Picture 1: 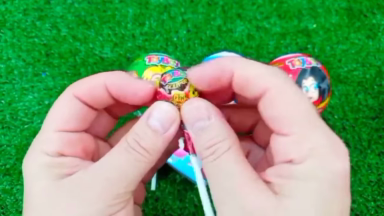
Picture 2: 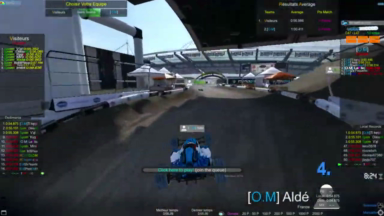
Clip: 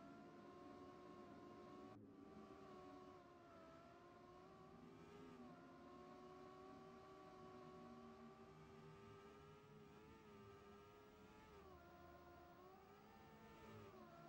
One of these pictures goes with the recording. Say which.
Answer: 2